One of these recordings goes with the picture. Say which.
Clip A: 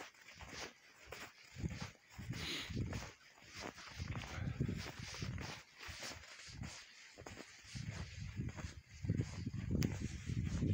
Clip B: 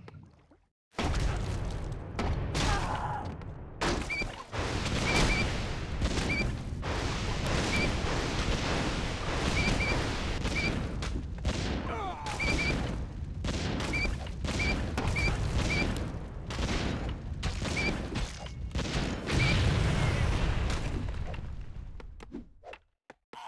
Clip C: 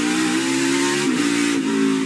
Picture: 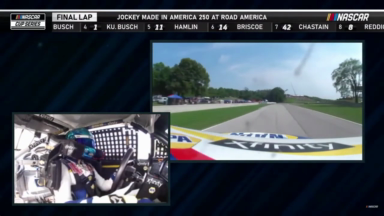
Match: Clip C